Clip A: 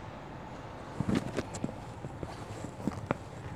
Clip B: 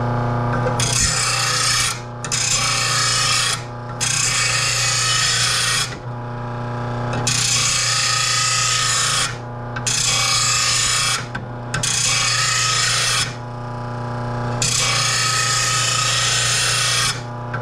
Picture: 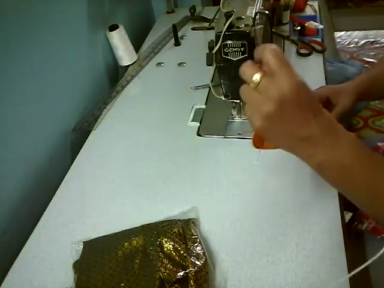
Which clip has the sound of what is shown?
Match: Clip A